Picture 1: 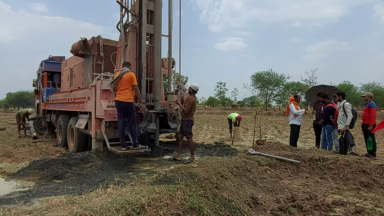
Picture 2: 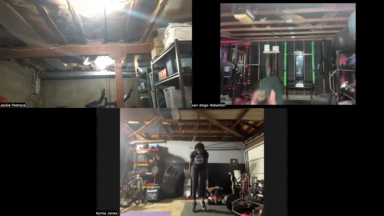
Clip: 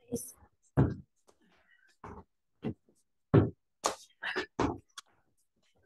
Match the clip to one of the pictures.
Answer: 2